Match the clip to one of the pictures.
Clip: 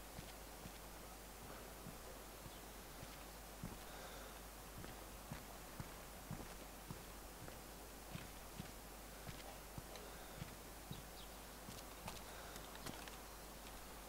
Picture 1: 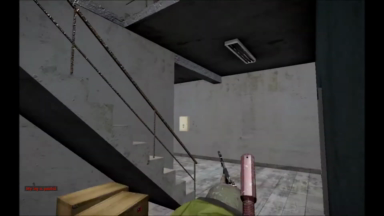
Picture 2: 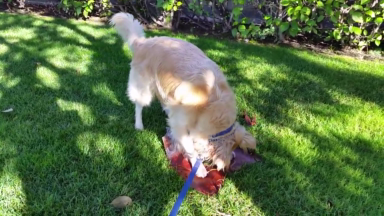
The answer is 1